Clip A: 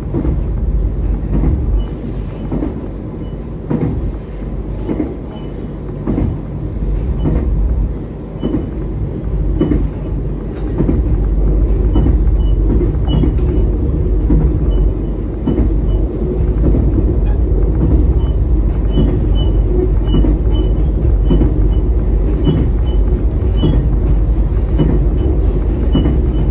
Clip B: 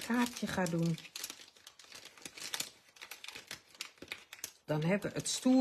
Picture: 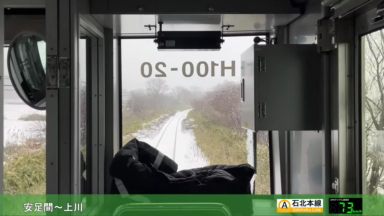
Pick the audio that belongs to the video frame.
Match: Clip A